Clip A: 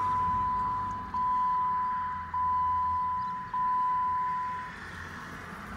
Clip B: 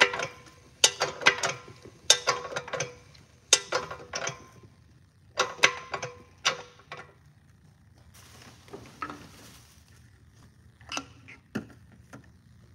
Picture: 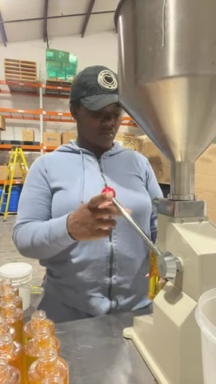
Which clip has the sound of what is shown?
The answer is B